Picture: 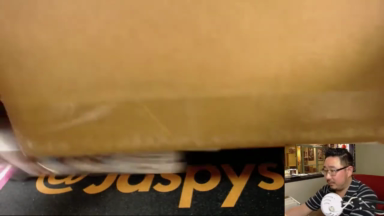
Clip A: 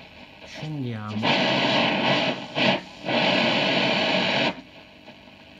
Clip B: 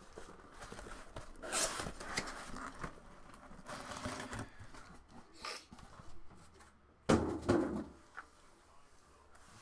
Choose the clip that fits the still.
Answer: B